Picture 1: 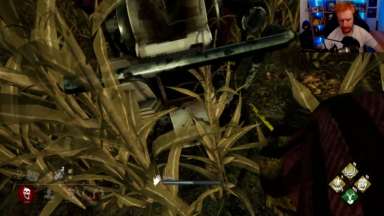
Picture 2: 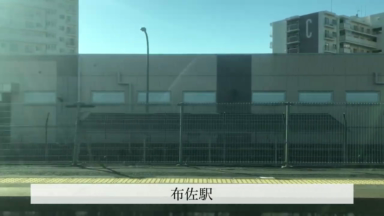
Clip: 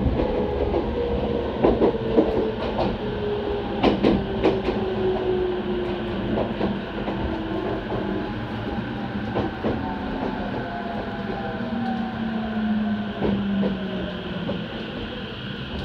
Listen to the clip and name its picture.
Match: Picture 2